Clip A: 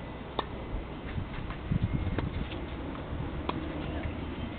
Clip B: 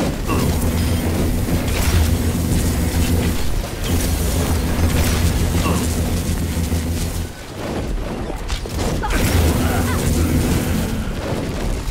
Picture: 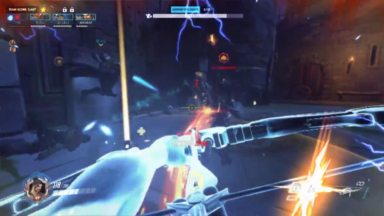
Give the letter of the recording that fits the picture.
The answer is B